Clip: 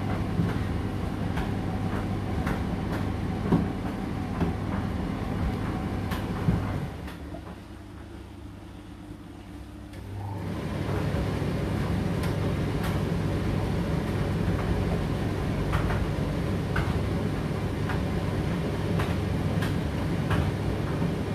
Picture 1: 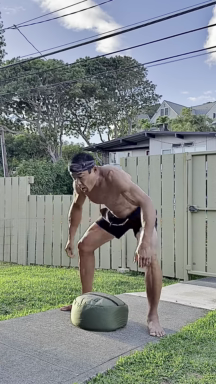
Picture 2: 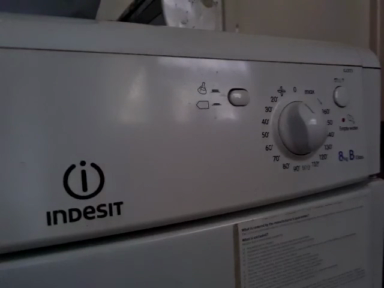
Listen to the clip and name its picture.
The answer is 2